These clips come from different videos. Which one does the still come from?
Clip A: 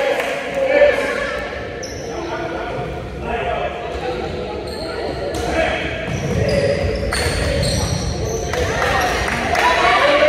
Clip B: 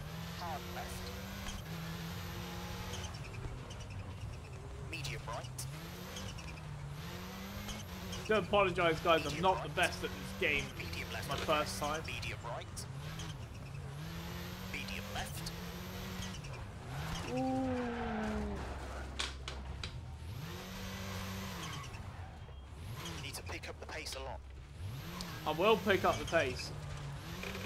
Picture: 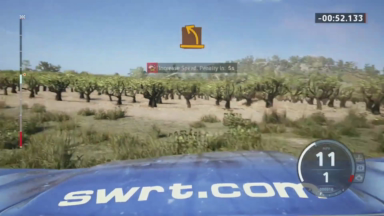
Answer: B